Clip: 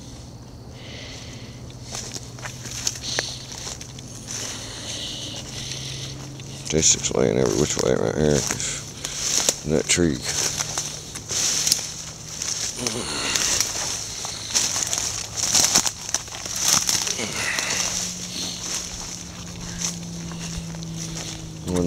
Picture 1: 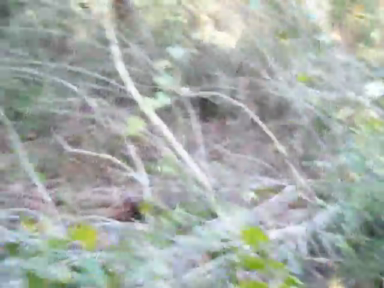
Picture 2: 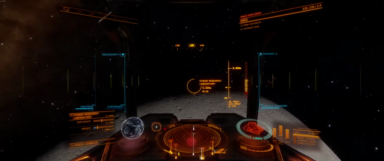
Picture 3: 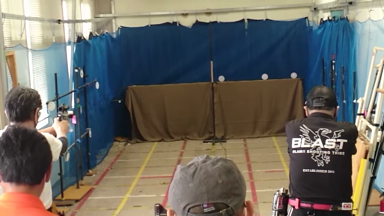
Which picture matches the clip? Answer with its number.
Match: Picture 1